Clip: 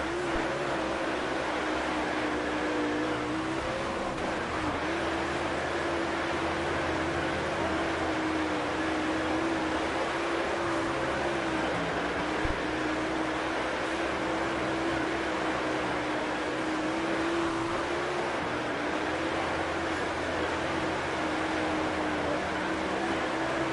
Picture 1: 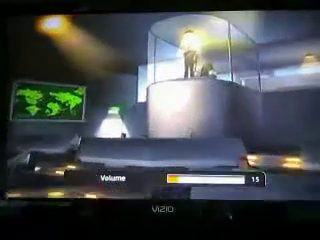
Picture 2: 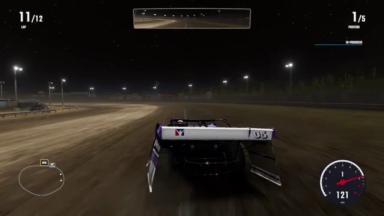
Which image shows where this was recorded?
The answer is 2